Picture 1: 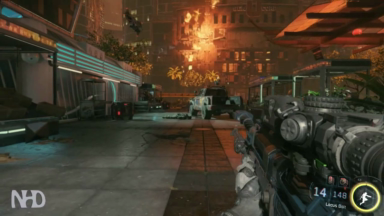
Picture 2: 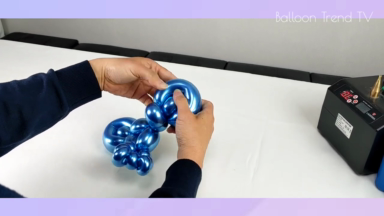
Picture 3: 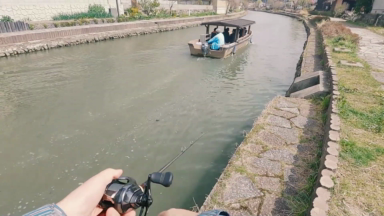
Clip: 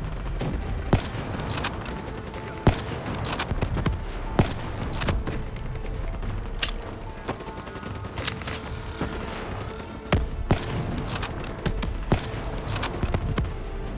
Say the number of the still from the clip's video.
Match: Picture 1